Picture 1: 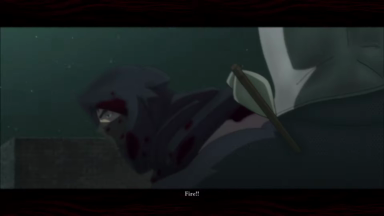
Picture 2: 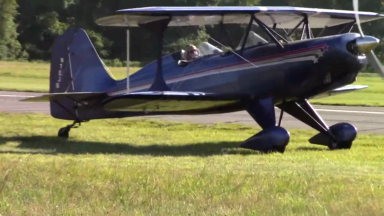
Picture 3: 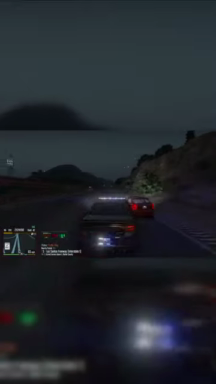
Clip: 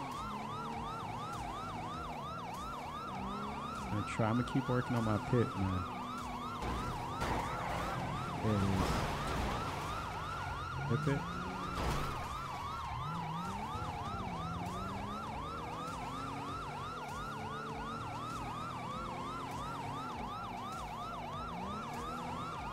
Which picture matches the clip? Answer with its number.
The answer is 3